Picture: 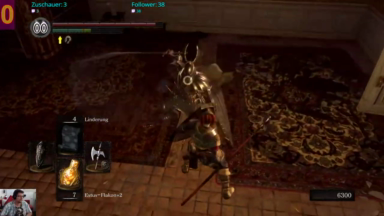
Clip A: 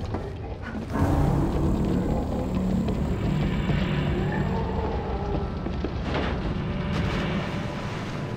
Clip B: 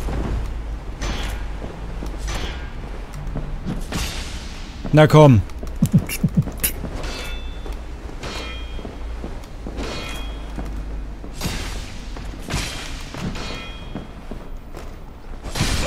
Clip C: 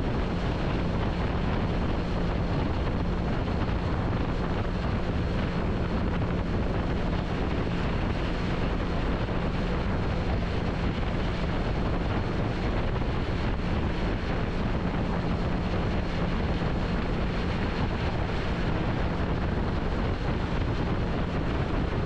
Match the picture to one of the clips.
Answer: B